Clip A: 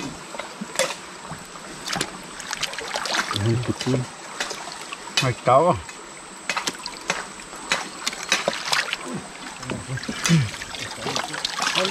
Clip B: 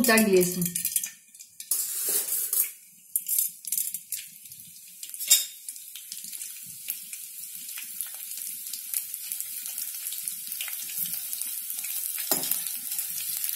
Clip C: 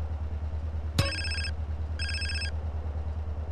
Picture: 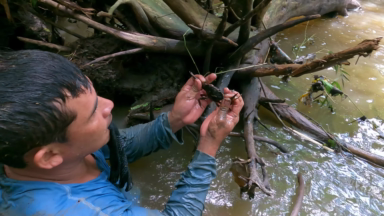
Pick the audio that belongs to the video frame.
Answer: A